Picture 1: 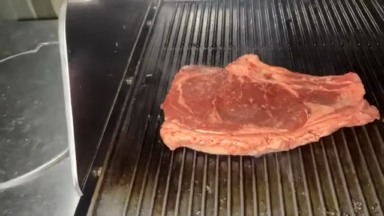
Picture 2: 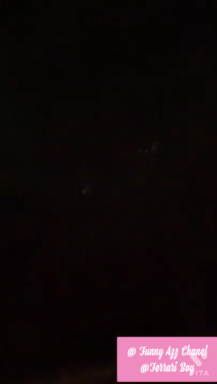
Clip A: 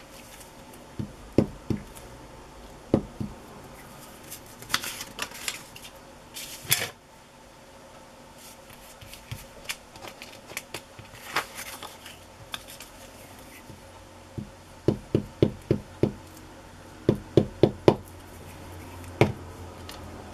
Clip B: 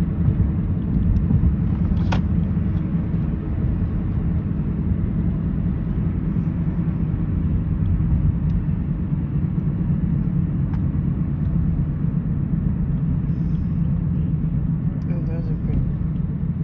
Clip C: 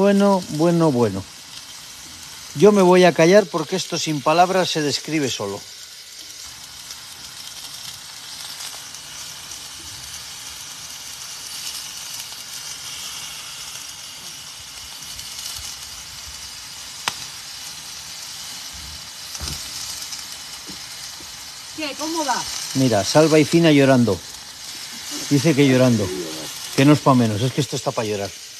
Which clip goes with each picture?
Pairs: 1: C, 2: B